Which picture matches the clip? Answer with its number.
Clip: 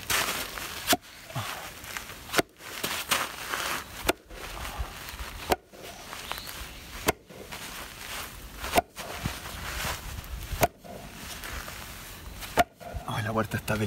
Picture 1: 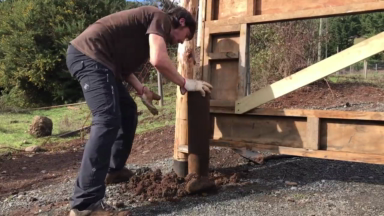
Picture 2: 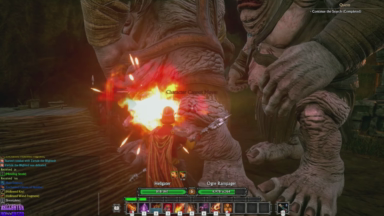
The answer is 1